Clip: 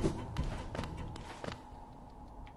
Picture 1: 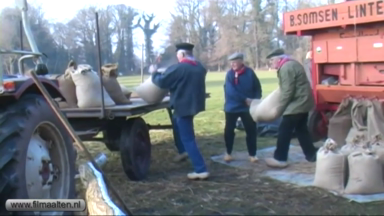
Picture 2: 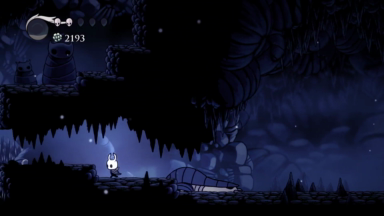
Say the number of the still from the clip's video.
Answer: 2